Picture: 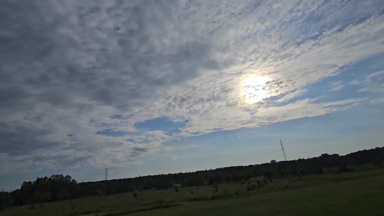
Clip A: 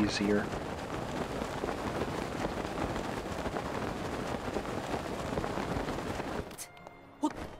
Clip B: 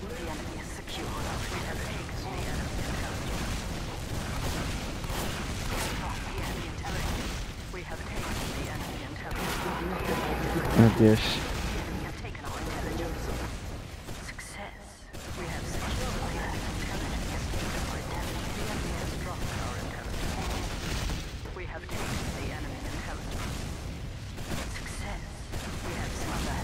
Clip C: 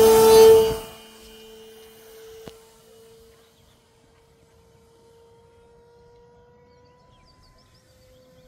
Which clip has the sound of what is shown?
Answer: C